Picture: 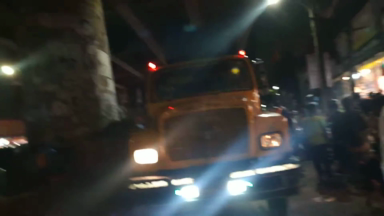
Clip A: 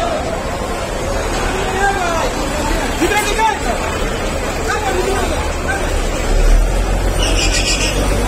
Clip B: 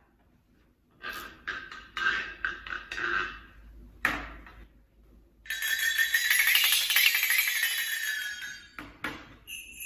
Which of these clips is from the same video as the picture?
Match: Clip A